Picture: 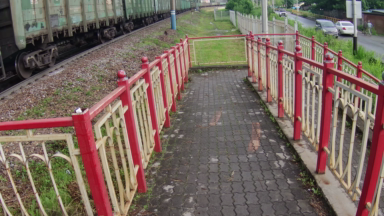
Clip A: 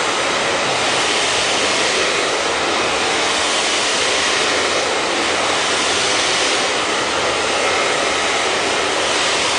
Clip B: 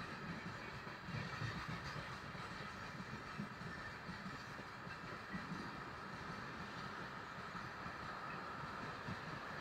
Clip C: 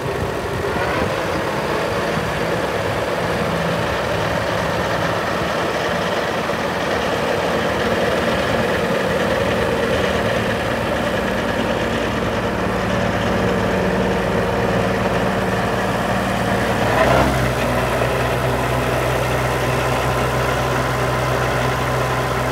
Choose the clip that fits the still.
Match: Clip B